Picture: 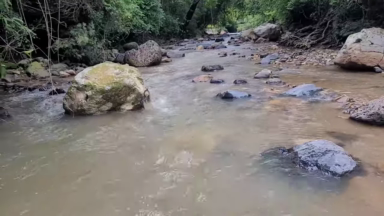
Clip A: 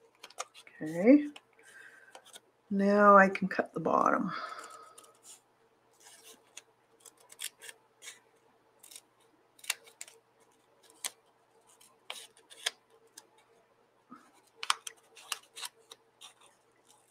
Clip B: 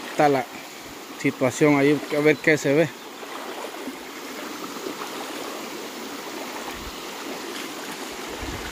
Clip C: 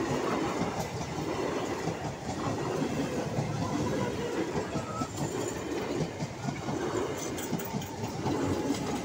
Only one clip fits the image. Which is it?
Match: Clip B